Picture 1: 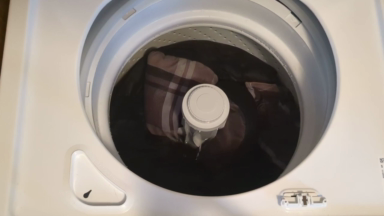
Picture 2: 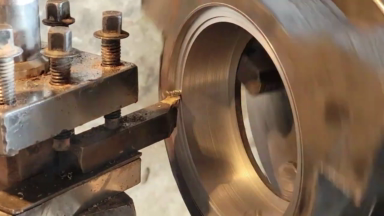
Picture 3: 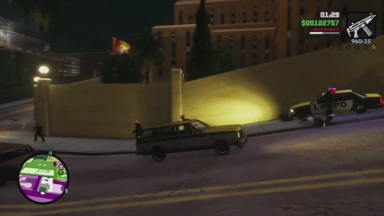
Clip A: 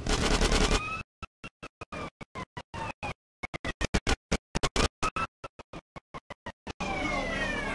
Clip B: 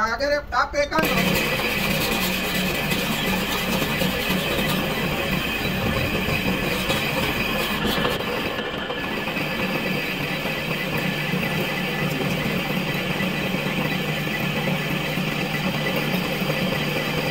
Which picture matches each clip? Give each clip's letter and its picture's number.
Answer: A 3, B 2